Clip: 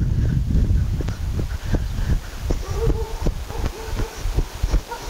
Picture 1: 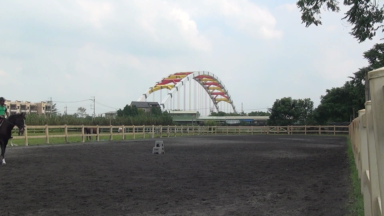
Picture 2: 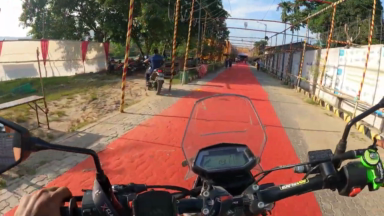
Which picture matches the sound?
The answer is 1